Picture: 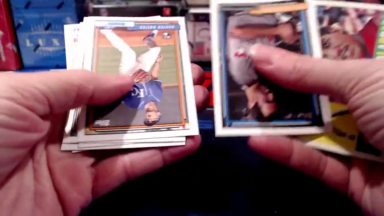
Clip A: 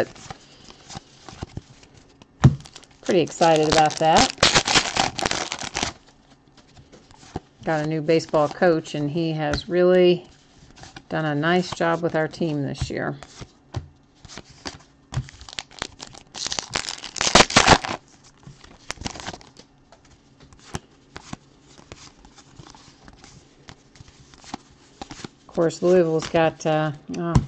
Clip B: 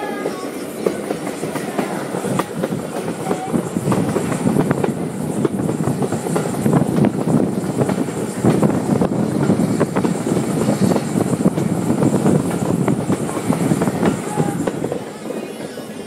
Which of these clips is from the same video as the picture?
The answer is A